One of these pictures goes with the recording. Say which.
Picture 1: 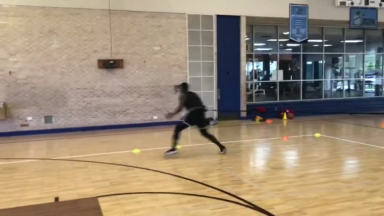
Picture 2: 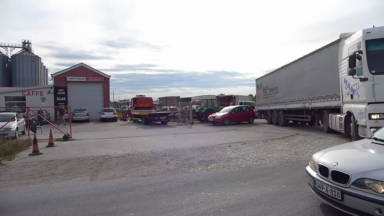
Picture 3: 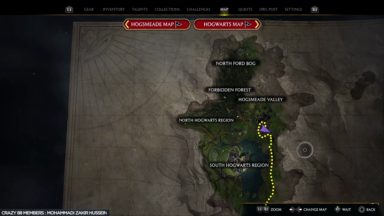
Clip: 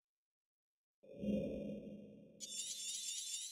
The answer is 3